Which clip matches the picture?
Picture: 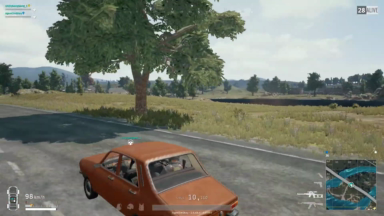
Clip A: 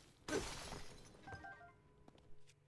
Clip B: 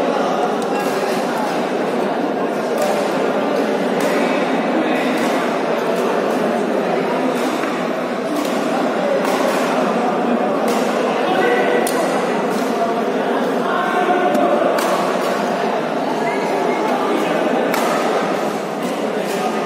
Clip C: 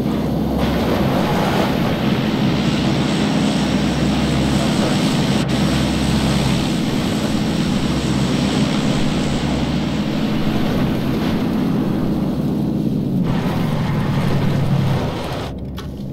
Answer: C